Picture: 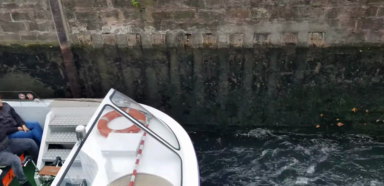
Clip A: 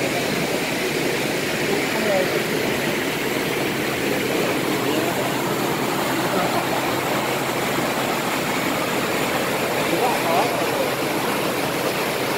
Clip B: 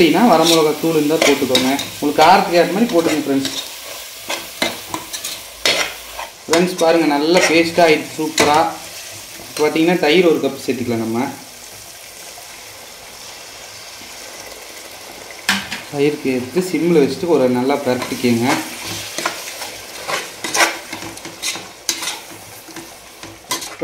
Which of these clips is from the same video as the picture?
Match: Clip A